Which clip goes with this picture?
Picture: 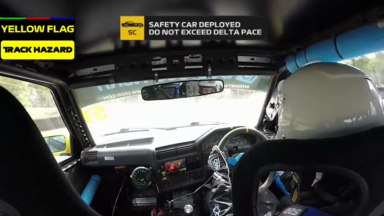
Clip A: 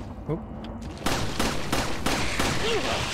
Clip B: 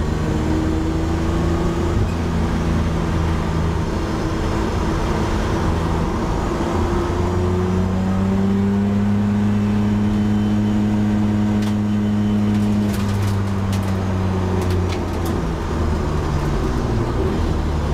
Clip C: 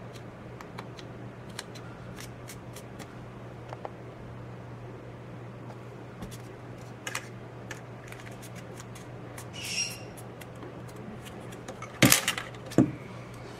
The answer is B